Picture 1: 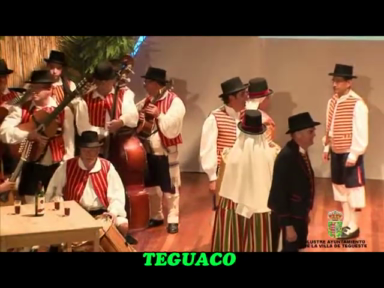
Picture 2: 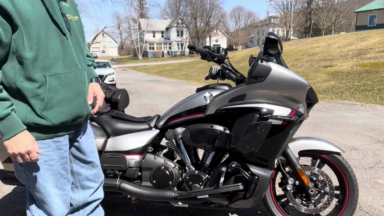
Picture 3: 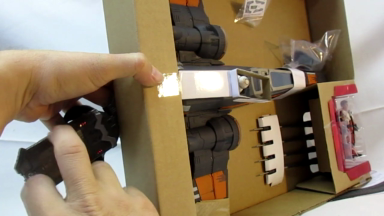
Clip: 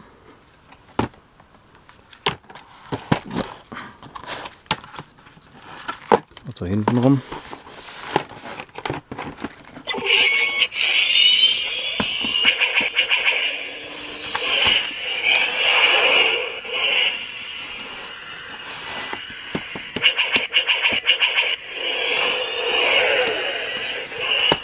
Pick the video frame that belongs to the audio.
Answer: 3